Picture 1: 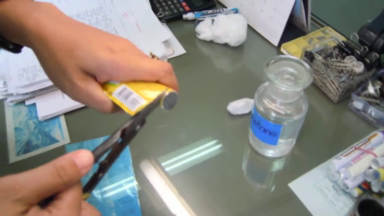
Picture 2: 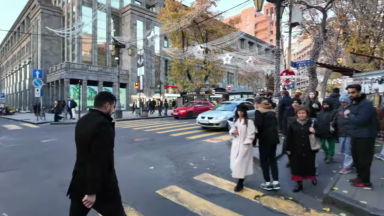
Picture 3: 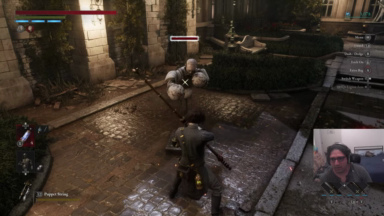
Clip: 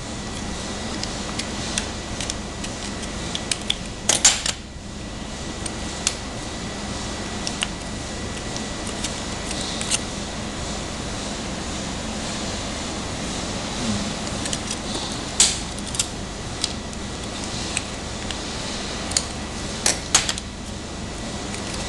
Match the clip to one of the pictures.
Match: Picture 1